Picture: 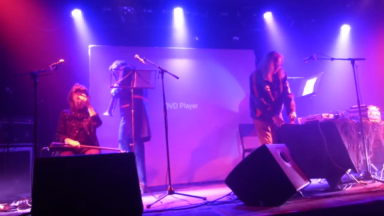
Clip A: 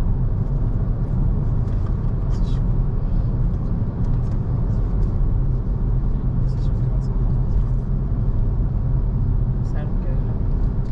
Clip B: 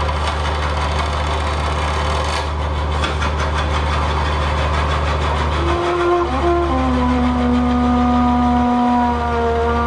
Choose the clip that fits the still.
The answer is B